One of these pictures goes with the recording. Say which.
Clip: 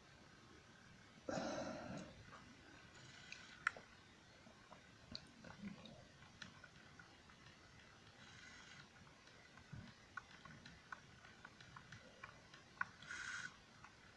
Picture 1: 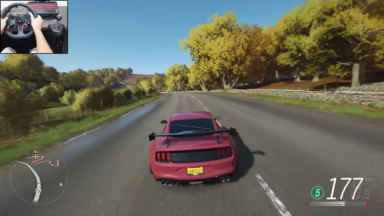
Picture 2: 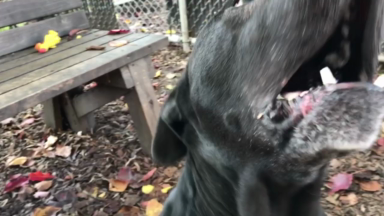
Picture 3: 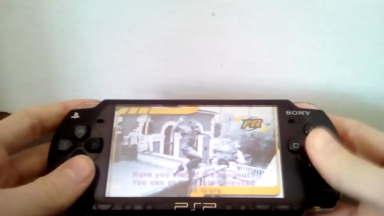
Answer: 3